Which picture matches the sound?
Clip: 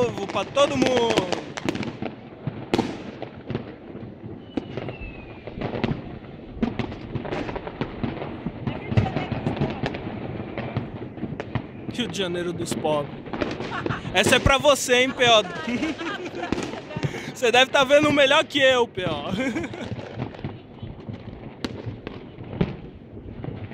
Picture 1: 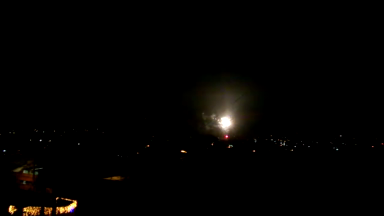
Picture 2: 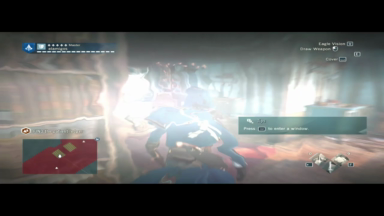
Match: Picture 1